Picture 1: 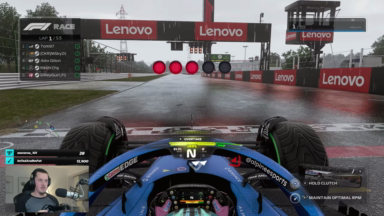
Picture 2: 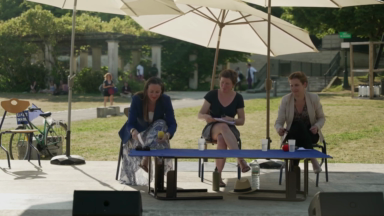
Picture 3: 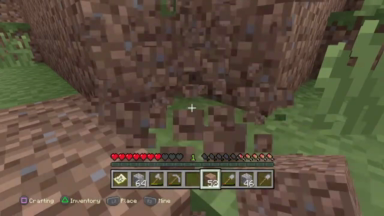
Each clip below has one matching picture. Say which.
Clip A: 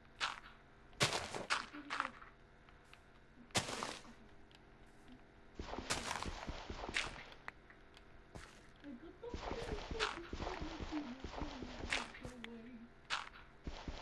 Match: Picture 3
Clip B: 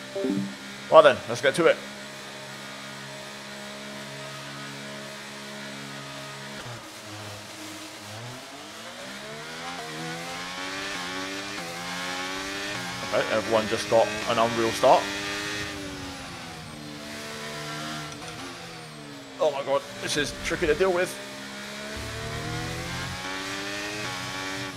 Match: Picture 1